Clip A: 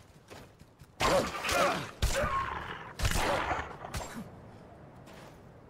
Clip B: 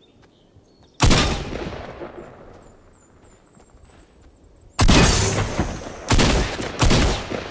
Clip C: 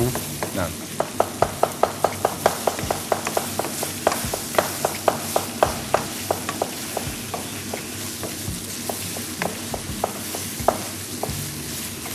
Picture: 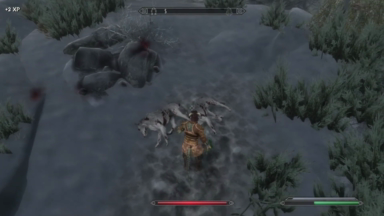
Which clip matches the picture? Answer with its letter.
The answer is A